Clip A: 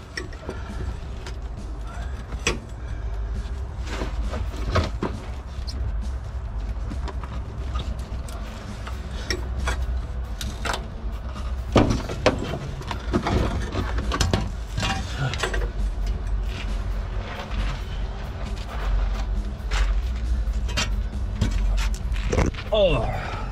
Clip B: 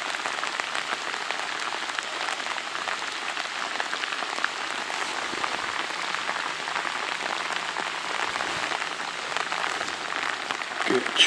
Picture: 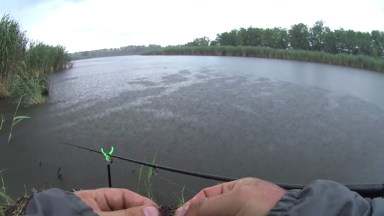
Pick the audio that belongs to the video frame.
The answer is B